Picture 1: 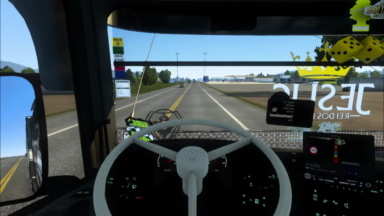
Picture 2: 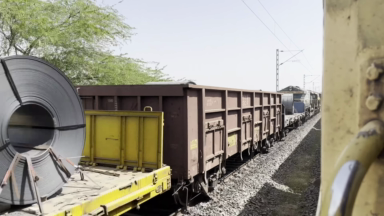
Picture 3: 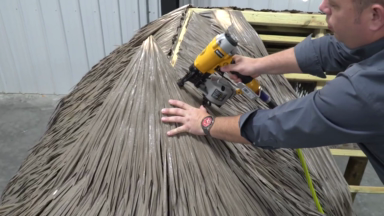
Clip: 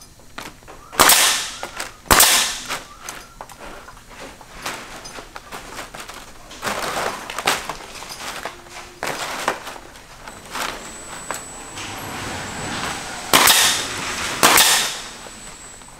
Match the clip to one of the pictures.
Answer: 3